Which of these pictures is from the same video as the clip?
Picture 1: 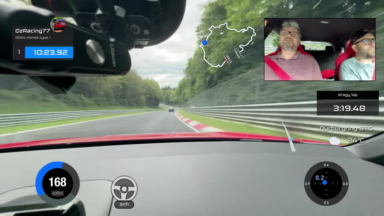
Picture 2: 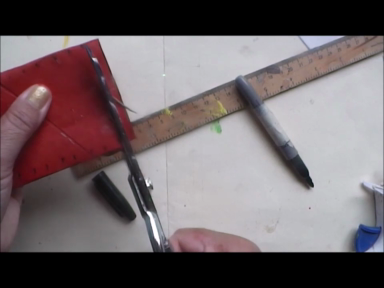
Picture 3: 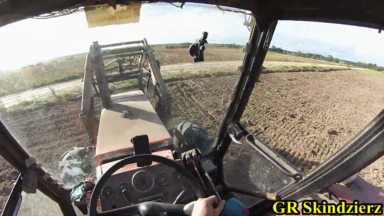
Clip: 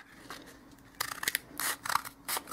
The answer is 2